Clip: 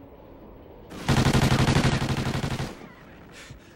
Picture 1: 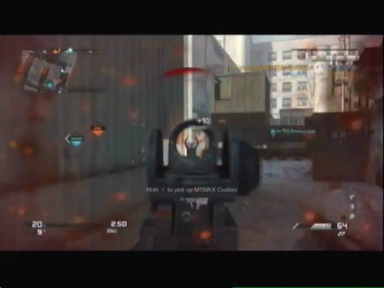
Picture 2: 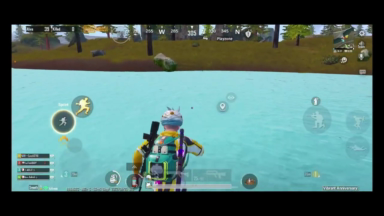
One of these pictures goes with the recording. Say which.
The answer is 1